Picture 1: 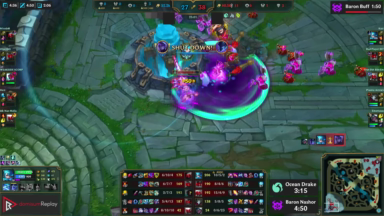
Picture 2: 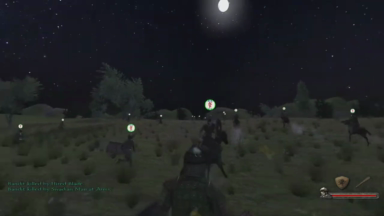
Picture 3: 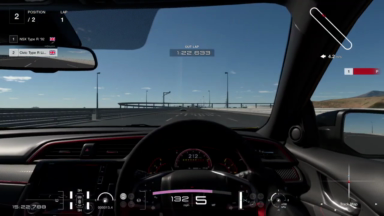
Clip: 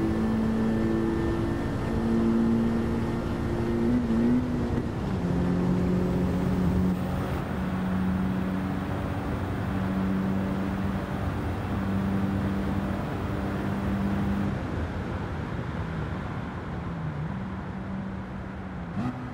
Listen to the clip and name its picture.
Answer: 3